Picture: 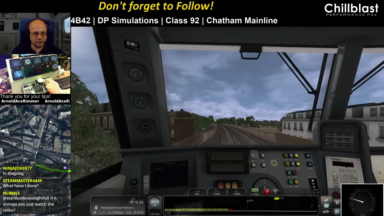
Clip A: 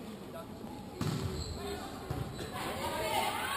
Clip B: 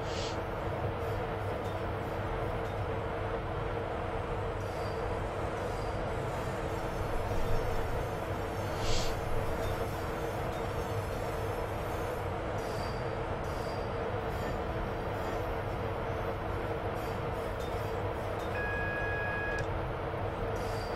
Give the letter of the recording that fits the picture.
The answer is B